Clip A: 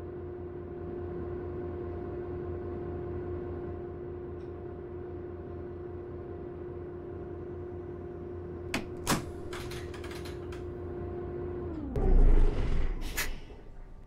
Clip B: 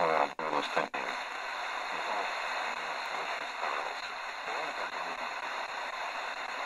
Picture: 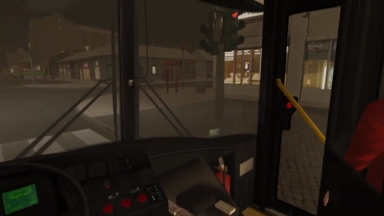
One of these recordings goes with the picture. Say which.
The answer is A